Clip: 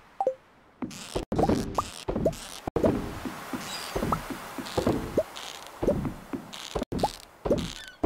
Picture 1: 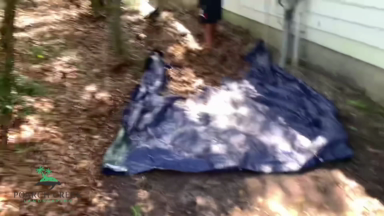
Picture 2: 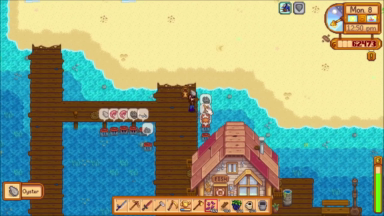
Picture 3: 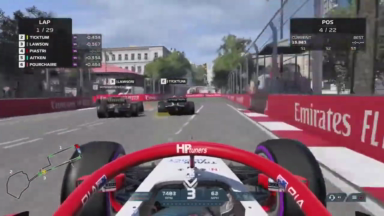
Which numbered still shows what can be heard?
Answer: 2